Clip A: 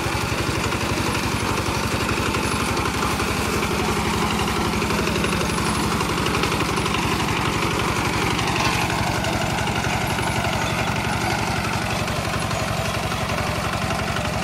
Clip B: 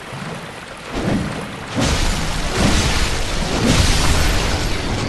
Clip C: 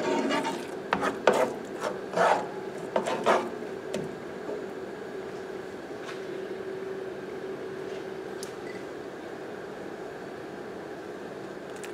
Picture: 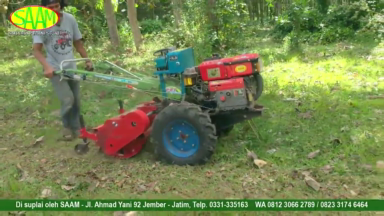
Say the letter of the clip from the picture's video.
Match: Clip A